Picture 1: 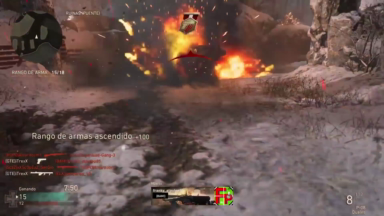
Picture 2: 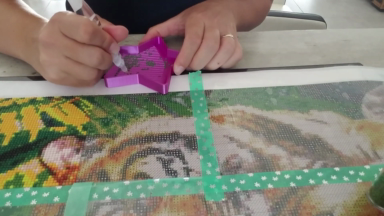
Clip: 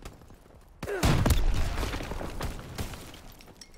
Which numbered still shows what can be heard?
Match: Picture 1